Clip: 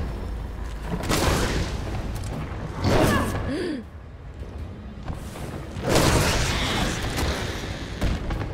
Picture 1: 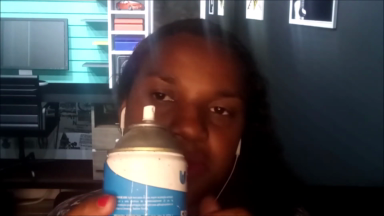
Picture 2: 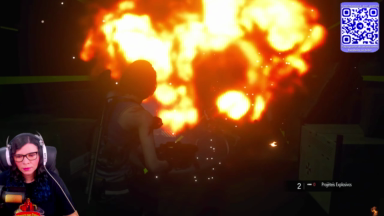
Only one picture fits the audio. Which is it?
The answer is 2